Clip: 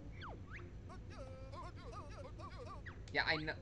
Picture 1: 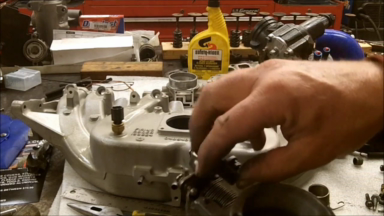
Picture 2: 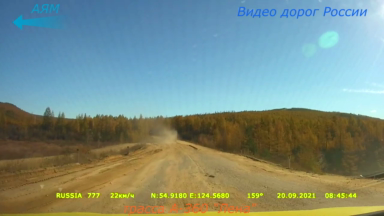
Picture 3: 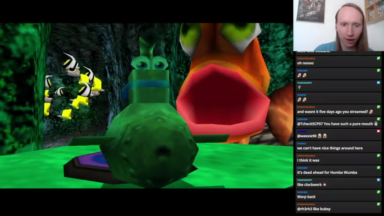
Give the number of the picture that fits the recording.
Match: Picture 3